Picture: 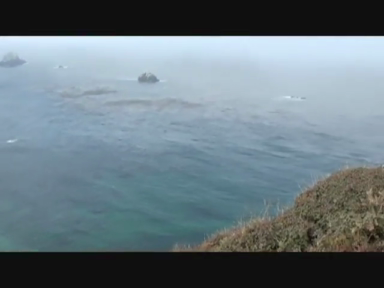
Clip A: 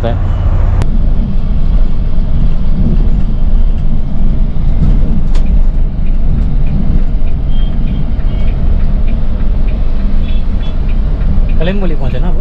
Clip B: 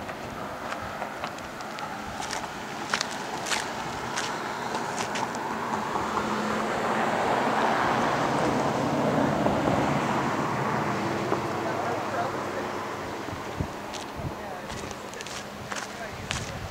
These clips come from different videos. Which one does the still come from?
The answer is B